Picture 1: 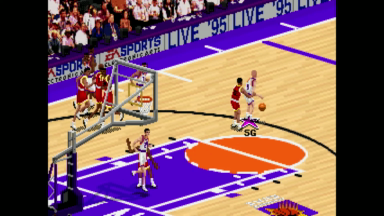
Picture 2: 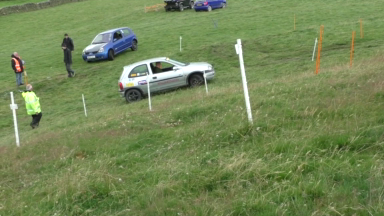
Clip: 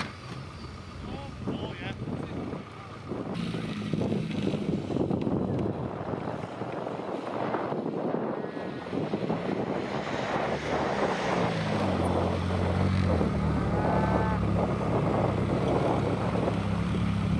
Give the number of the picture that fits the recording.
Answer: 2